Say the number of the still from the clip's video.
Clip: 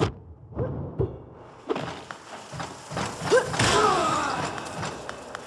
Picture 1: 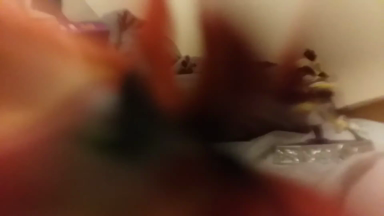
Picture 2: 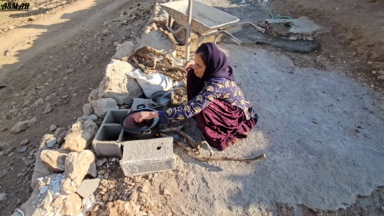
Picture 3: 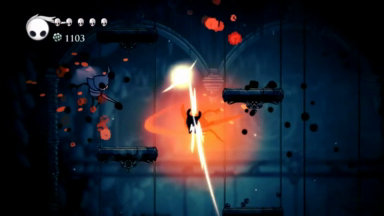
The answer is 3